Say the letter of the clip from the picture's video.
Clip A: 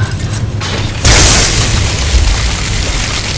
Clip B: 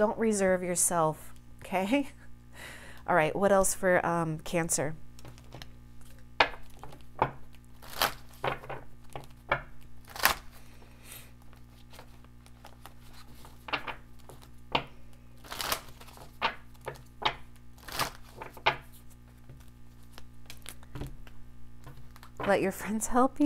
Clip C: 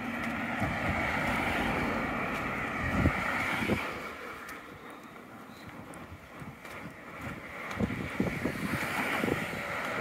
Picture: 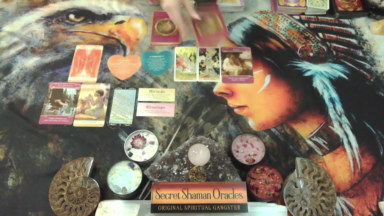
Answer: B